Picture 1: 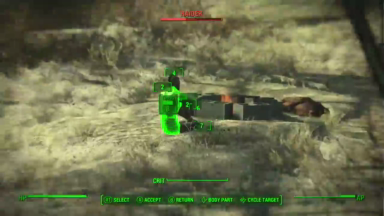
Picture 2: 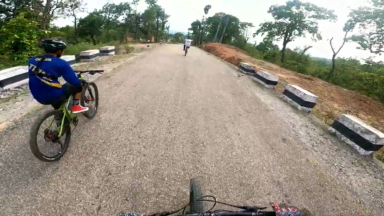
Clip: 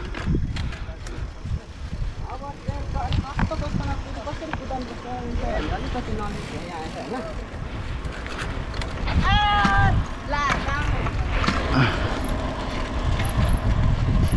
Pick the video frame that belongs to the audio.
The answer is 2